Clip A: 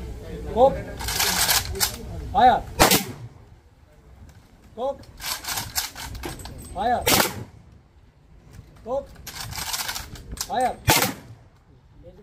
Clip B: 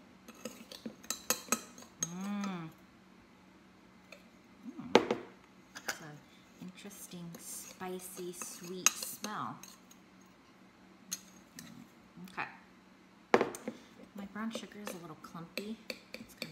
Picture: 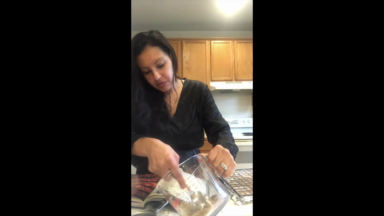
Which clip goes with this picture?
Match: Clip B